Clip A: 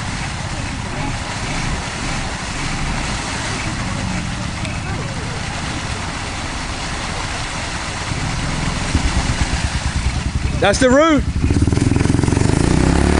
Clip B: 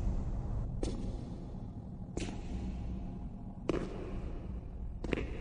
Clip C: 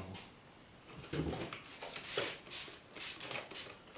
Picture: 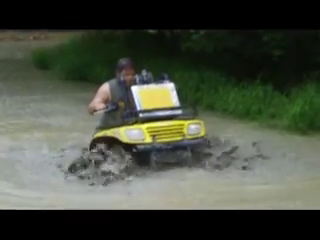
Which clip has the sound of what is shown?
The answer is A